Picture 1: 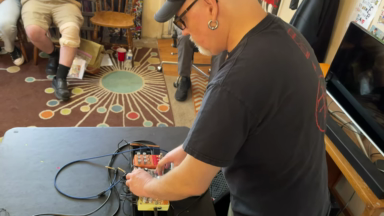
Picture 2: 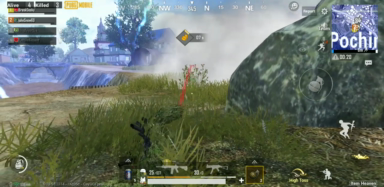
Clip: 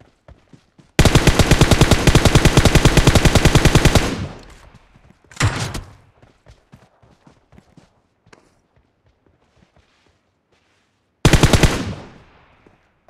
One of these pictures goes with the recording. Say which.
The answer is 2